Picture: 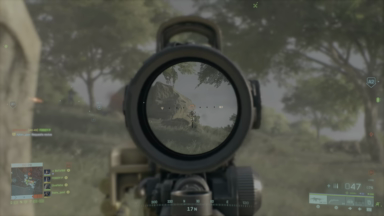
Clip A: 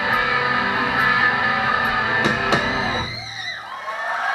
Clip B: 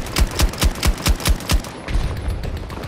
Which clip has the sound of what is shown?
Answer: B